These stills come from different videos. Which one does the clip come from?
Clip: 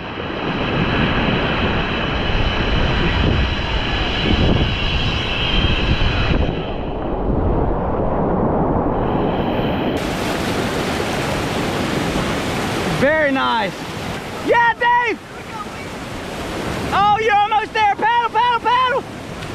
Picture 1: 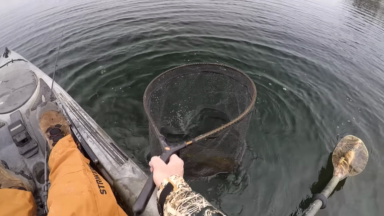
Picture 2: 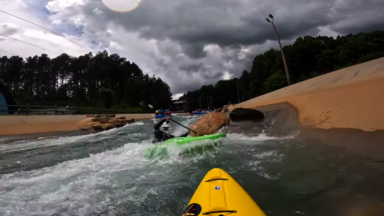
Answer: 2